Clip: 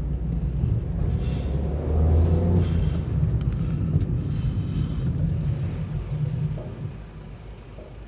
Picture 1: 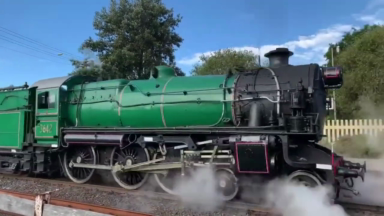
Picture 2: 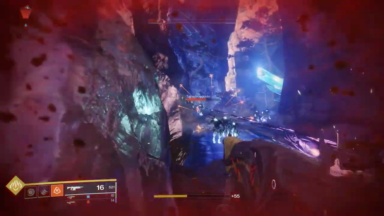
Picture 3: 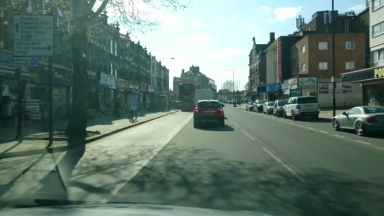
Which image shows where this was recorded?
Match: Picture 3